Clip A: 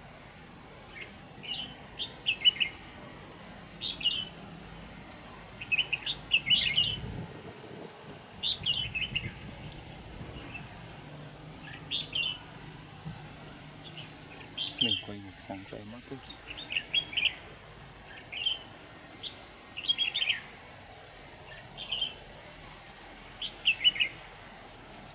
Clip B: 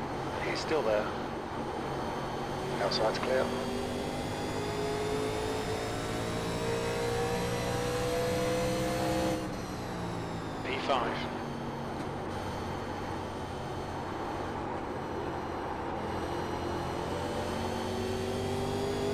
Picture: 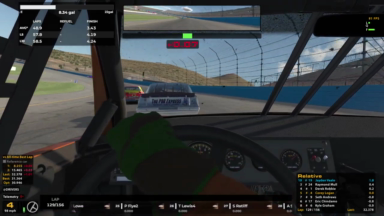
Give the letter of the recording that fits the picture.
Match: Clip B